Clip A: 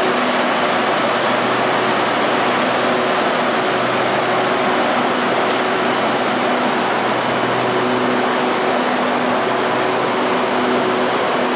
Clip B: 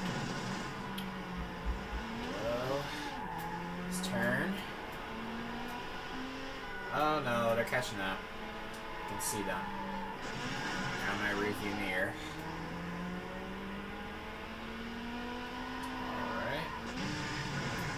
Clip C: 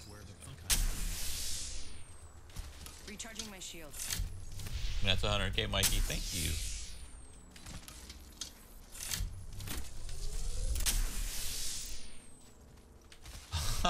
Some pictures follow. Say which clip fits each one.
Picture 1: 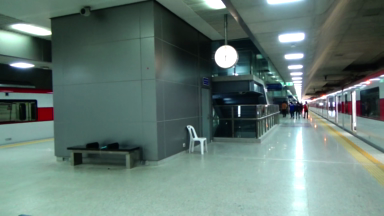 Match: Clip A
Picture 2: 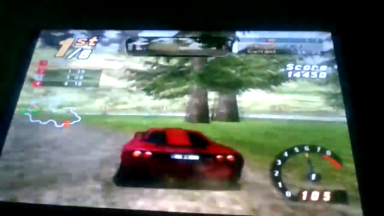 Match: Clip B